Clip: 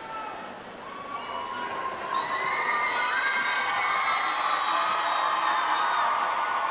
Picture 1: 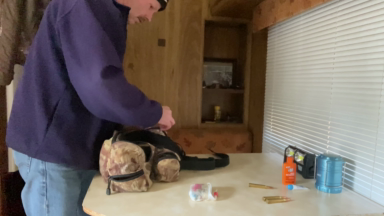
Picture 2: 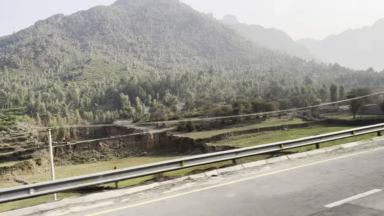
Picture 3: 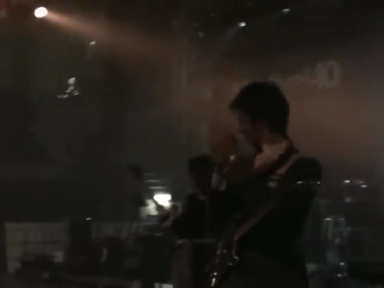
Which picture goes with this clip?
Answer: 3